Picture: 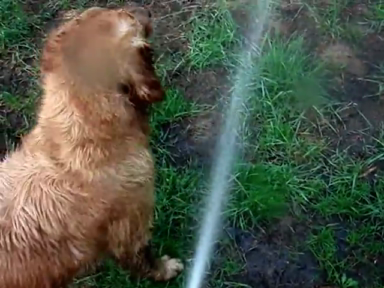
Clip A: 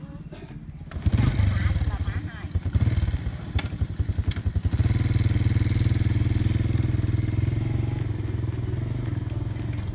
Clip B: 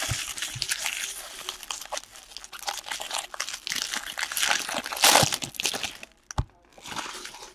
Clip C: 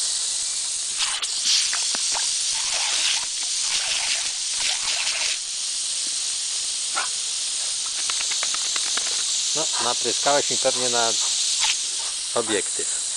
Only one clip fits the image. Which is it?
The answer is C